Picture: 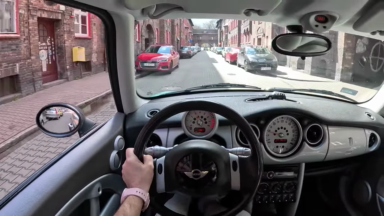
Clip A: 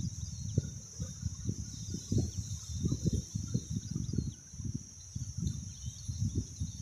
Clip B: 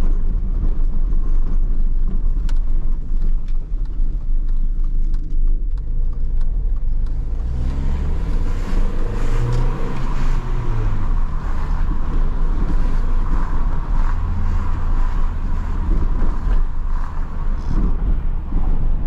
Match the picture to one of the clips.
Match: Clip B